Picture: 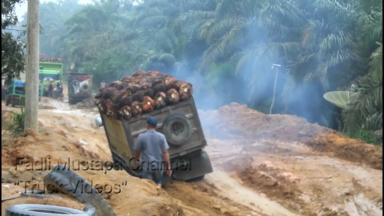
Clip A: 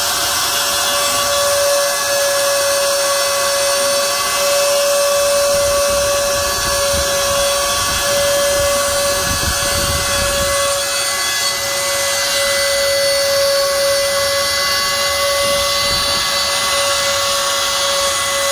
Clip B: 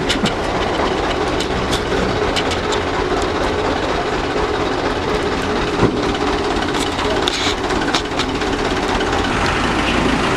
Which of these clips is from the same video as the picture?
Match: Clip B